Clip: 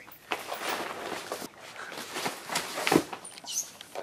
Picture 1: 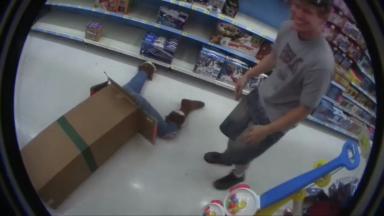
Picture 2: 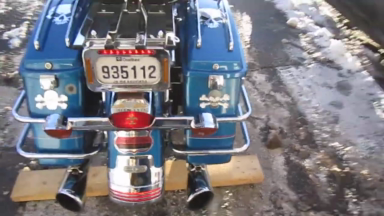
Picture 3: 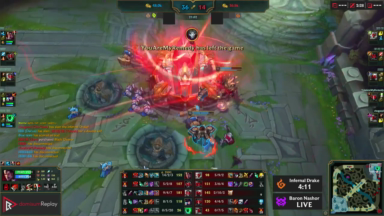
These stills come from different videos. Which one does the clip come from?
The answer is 1